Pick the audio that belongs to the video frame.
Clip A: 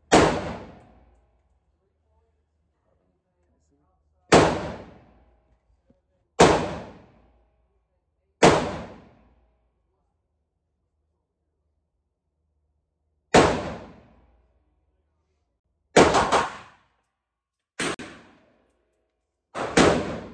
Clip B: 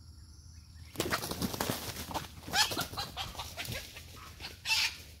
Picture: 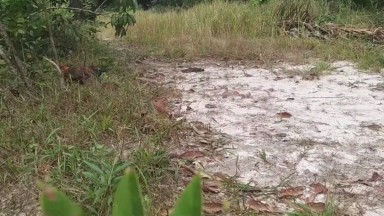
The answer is B